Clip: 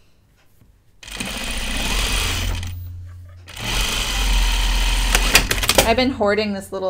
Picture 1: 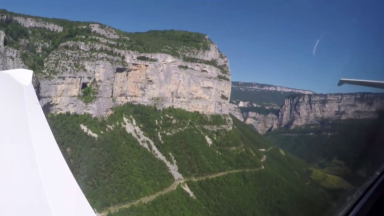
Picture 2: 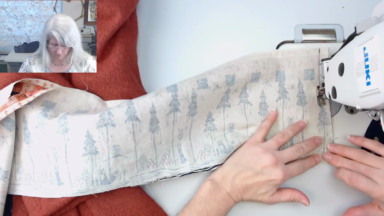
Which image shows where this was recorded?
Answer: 2